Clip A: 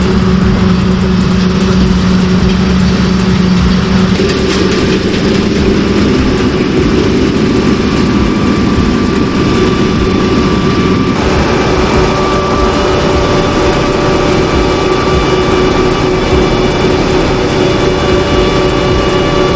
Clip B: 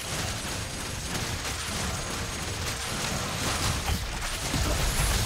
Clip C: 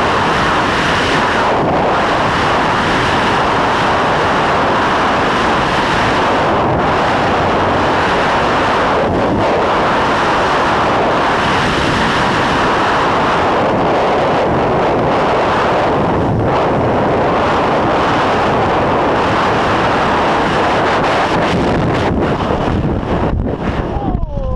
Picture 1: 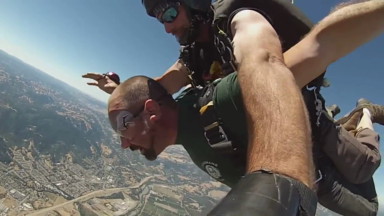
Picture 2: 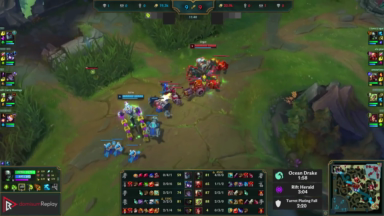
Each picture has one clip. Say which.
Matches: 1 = C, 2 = B